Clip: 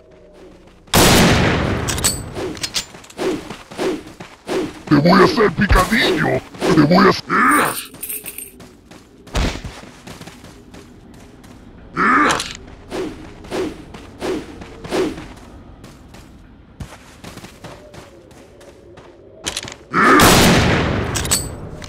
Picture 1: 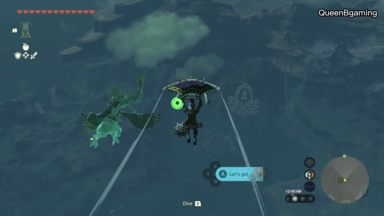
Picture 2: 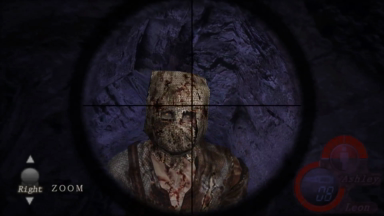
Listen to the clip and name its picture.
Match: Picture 2